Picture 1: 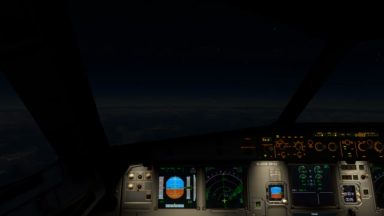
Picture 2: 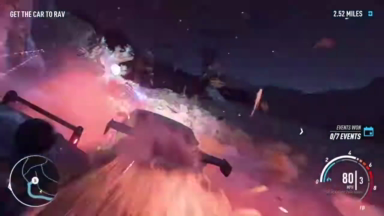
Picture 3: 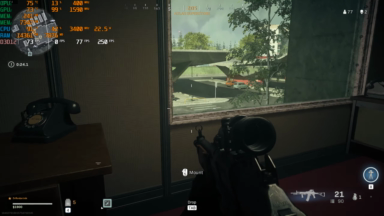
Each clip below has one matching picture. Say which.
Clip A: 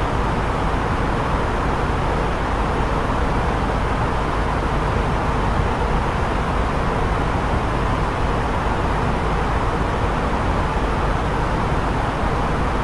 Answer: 1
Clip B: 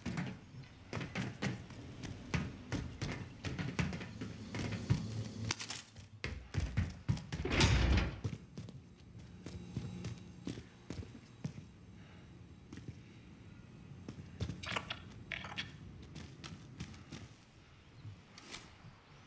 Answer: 3